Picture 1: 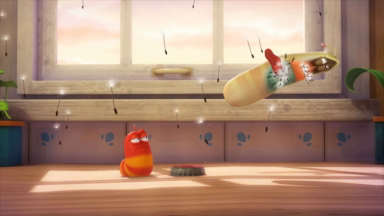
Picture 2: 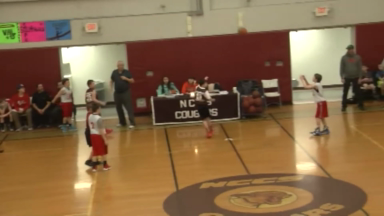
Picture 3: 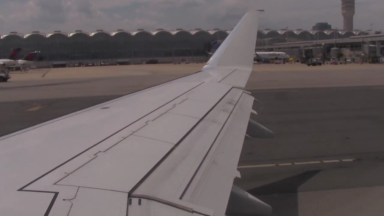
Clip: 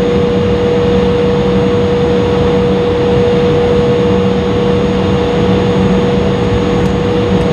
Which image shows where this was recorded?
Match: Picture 3